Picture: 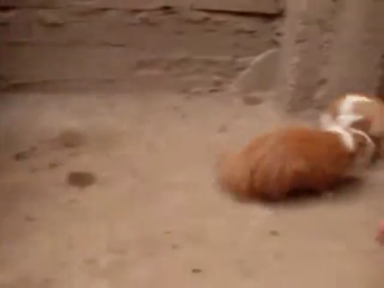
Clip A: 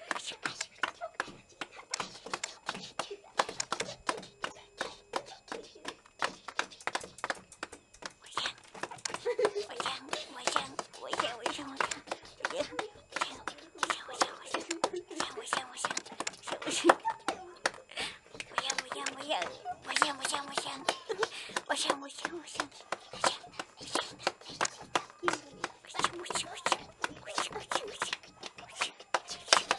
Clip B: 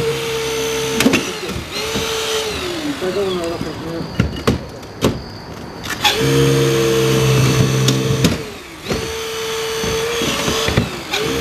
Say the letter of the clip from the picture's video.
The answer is A